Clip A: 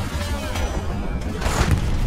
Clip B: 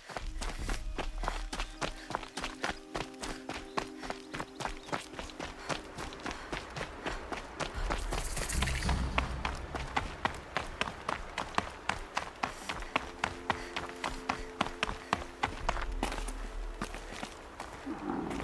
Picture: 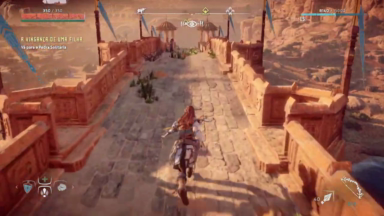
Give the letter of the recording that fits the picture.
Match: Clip B